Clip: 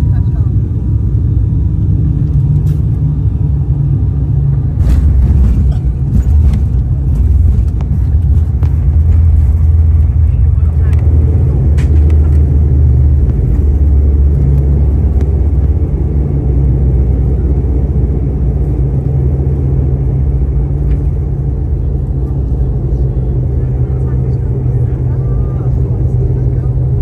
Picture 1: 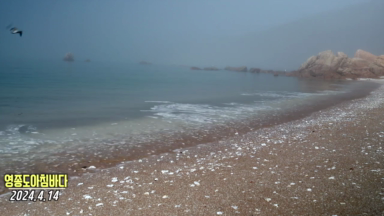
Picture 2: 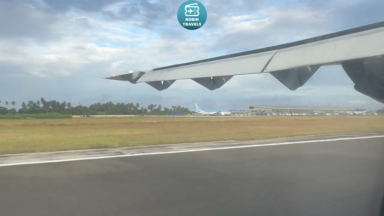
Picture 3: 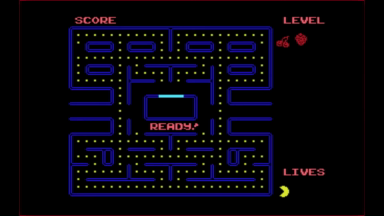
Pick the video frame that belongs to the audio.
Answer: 2